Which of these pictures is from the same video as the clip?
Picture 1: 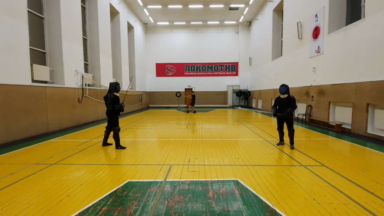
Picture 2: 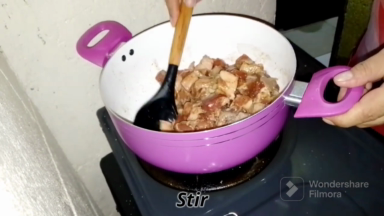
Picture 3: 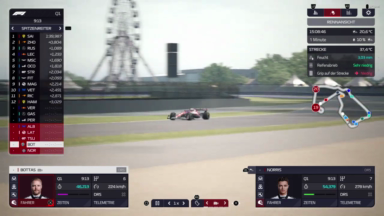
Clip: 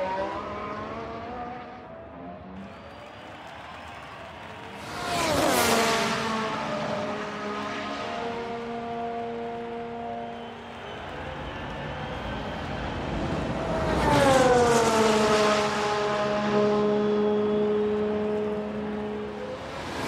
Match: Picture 3